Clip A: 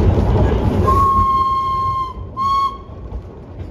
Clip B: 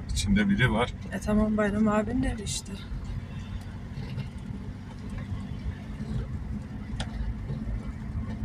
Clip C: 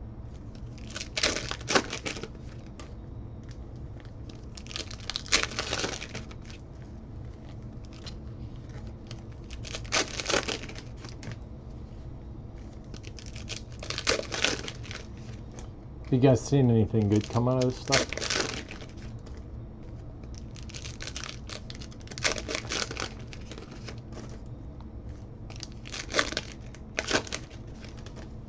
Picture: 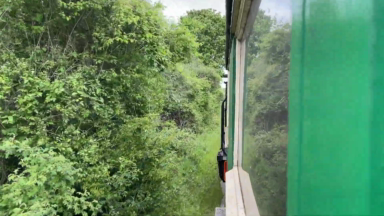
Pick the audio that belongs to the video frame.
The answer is A